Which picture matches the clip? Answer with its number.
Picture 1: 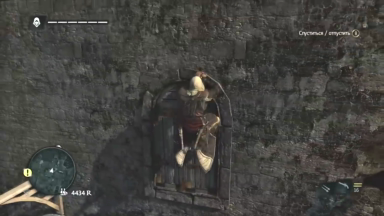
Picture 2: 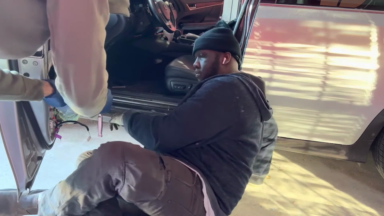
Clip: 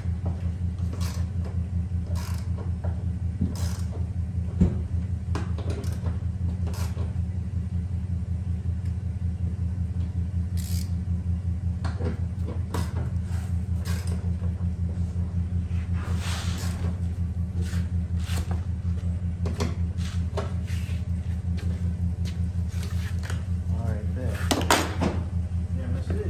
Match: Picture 2